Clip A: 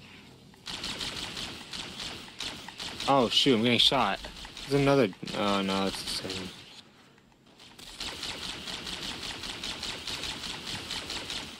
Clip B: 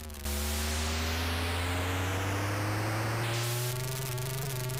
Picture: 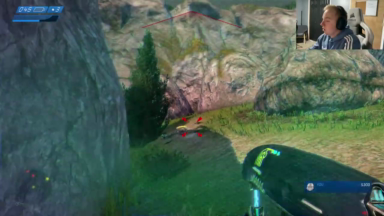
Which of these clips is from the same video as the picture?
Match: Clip A